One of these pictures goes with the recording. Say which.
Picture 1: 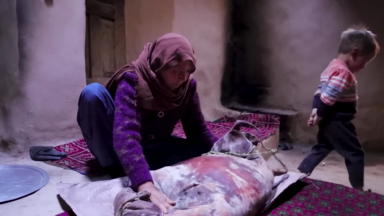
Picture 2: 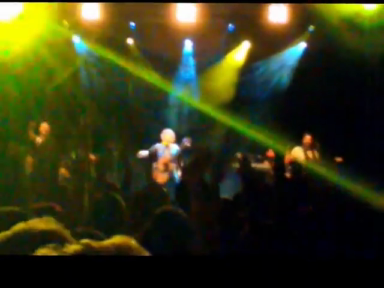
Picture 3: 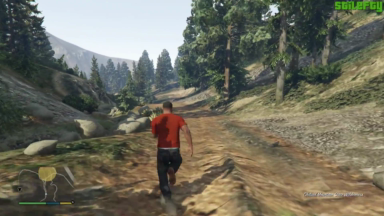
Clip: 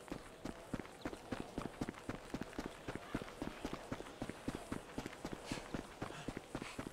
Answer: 3